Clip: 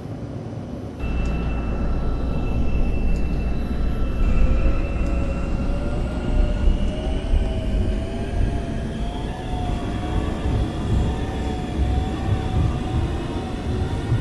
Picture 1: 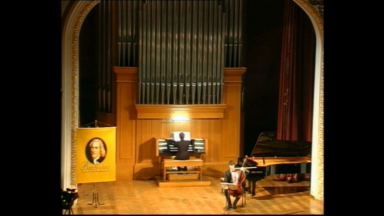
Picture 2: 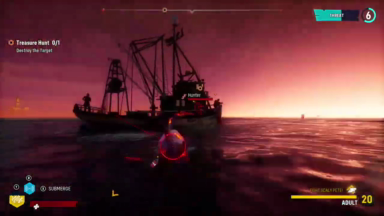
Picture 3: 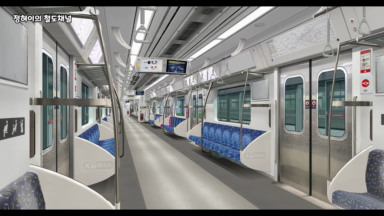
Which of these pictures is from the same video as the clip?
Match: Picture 3